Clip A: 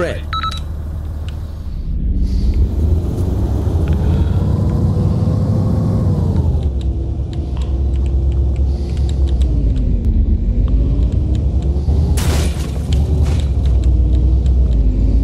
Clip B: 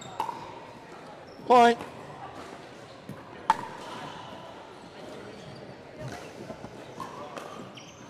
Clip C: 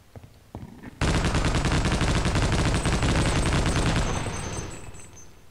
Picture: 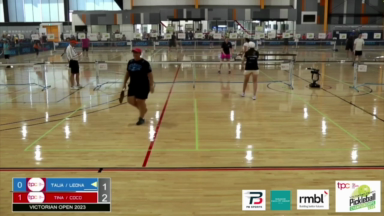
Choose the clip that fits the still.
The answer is B